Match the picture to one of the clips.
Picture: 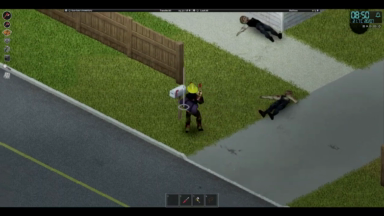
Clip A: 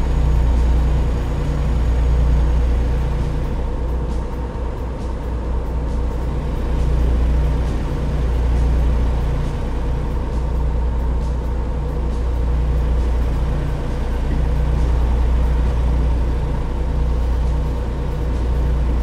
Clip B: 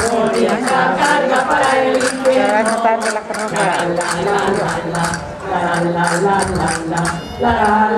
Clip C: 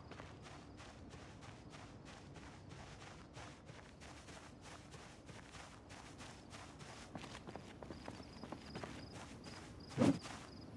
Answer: C